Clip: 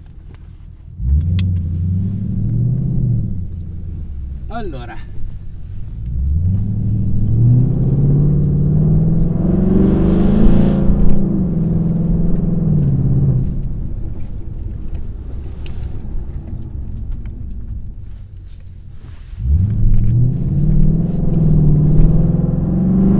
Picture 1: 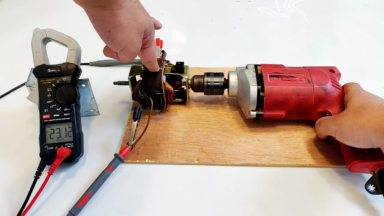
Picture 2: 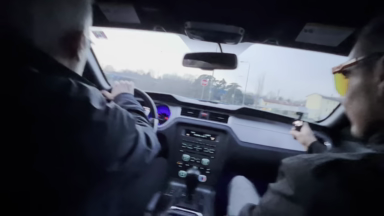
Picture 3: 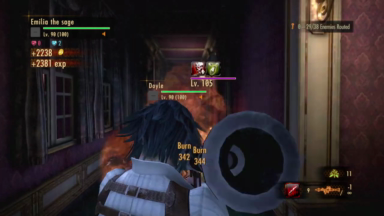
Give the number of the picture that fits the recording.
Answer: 2